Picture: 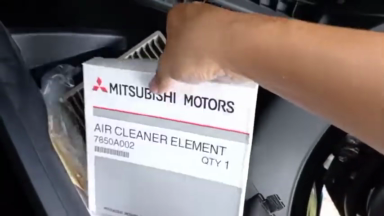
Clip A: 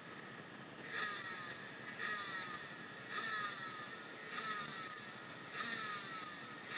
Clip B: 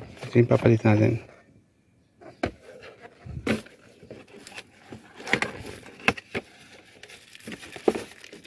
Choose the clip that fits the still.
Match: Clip B